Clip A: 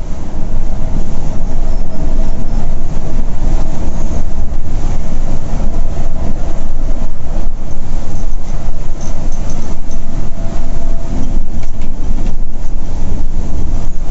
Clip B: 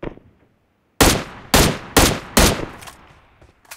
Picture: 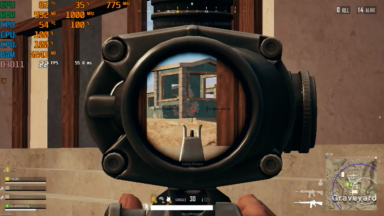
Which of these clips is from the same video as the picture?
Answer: B